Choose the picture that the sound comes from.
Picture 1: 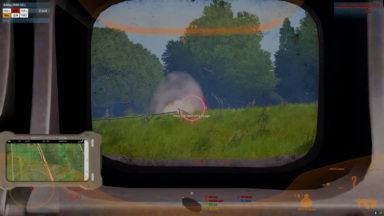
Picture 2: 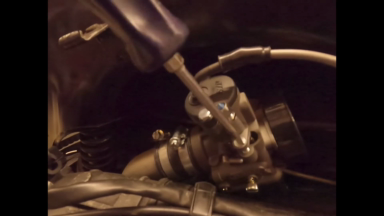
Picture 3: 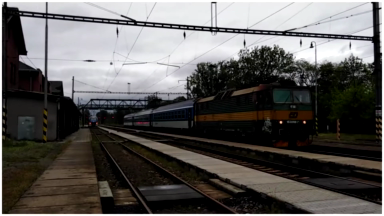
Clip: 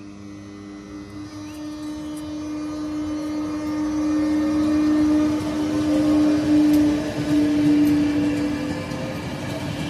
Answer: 3